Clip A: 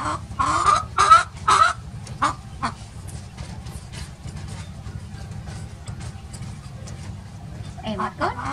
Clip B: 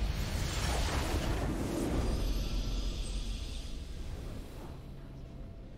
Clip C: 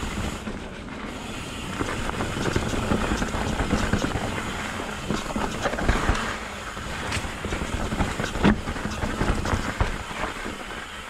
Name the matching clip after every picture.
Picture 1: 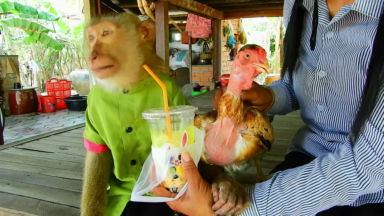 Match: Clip A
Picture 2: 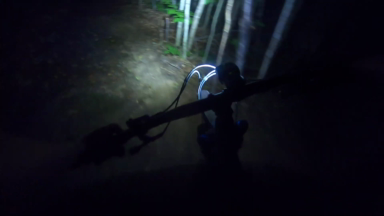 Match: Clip C